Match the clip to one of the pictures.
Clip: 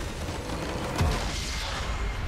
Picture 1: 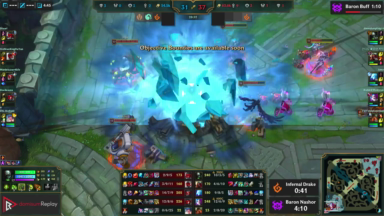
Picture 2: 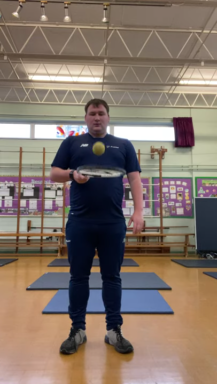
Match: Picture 1